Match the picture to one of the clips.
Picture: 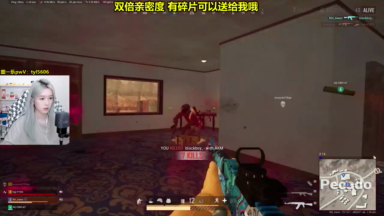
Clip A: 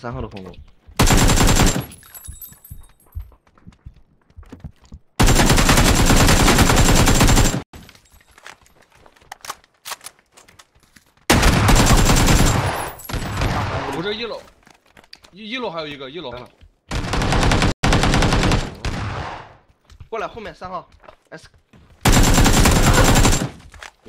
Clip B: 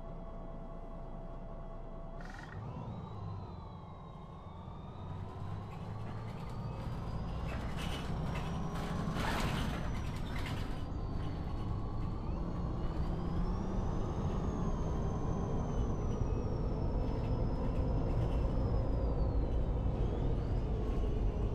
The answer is A